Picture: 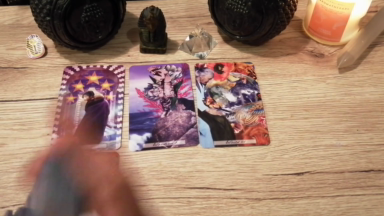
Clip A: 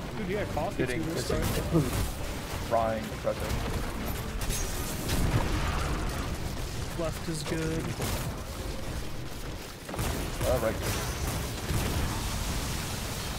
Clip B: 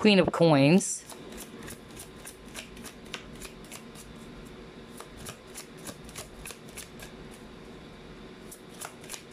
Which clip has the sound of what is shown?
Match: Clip B